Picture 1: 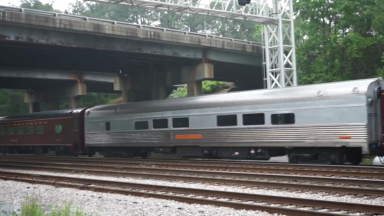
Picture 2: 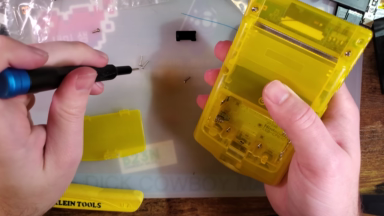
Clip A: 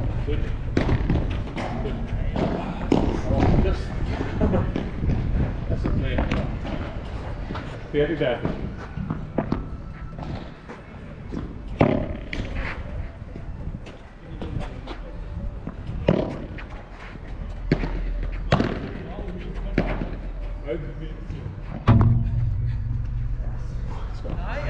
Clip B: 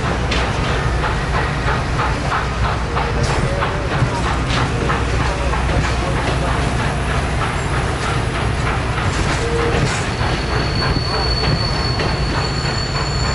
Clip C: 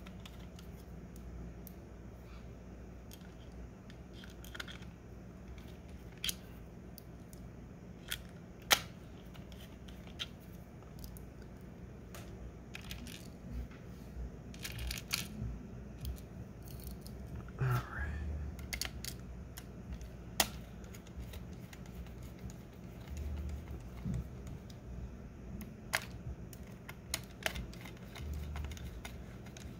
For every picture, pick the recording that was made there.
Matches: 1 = B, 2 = C